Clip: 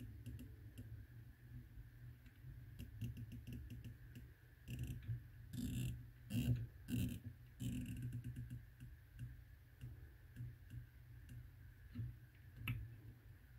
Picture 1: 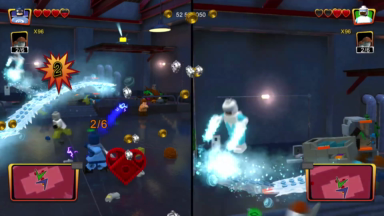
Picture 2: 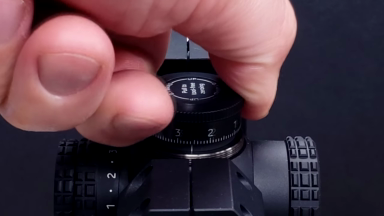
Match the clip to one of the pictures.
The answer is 2